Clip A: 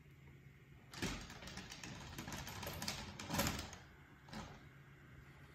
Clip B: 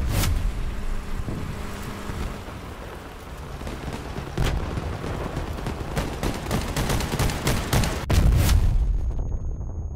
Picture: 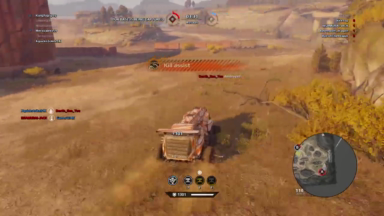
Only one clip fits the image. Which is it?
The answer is B